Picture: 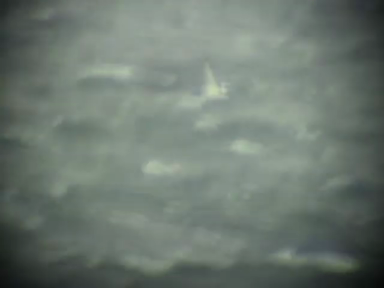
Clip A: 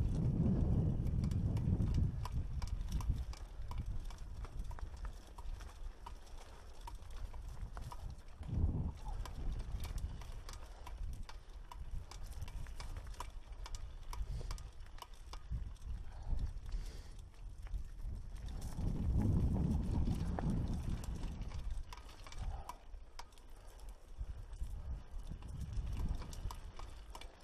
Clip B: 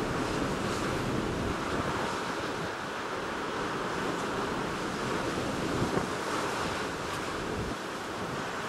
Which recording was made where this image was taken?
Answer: B